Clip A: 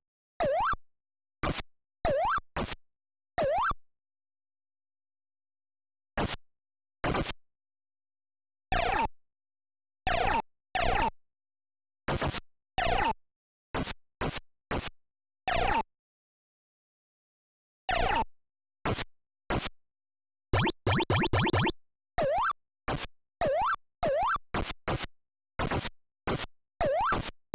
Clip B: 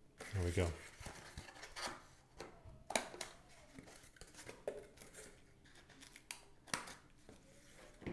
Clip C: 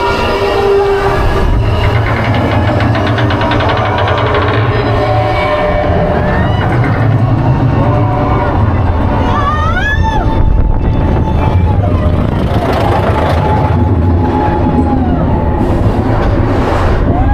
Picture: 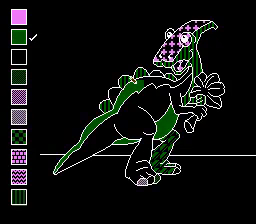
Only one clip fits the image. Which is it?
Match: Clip A